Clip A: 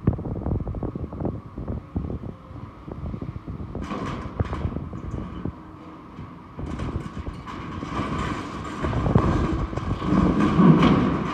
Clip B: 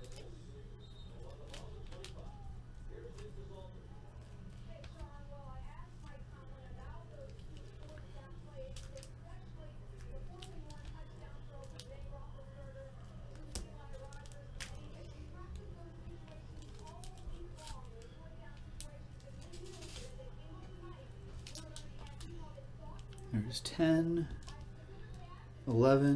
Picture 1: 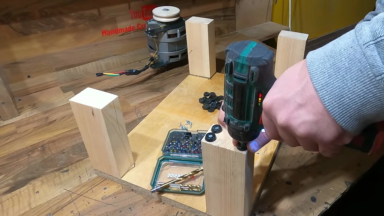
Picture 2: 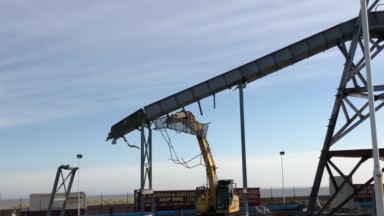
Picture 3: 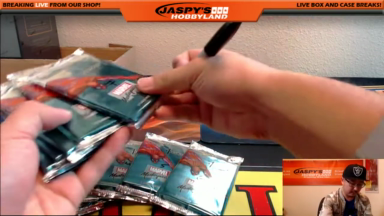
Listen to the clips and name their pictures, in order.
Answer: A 2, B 3